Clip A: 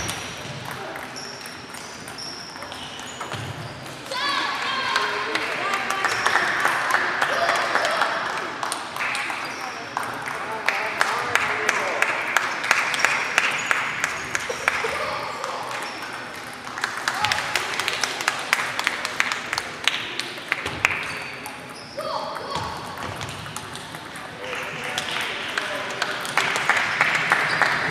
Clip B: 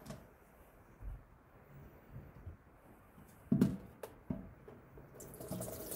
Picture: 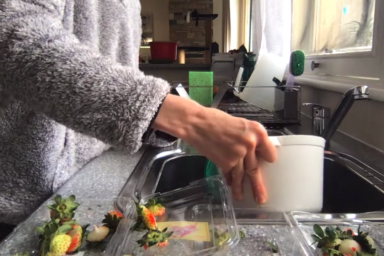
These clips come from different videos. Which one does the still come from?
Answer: B